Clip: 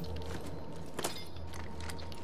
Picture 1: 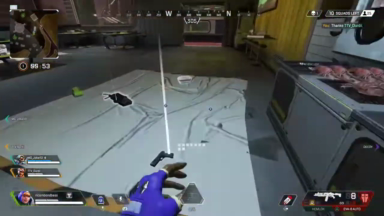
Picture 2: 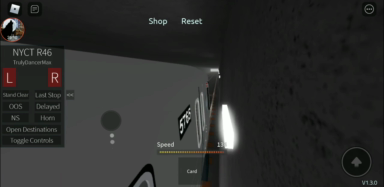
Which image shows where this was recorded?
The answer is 1